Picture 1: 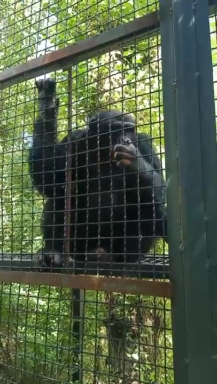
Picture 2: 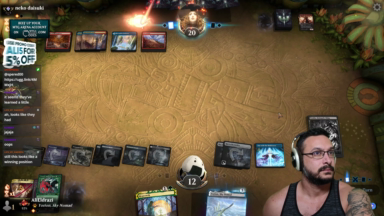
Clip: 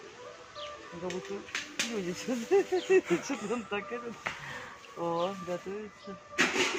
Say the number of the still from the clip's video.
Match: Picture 1